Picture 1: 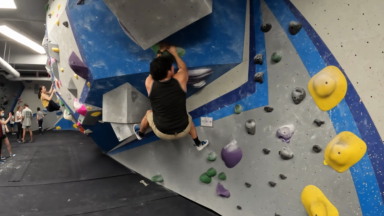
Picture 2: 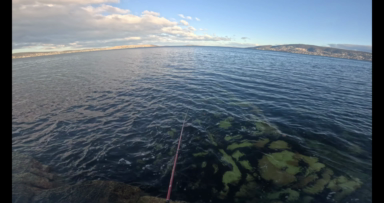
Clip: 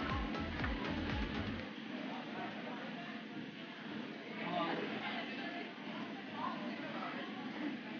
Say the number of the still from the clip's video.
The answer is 1